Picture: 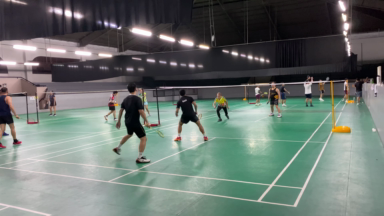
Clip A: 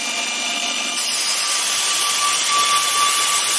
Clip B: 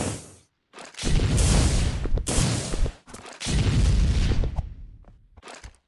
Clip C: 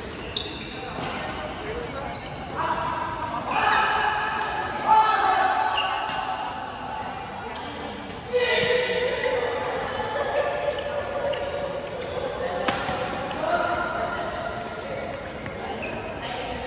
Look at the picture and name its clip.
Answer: C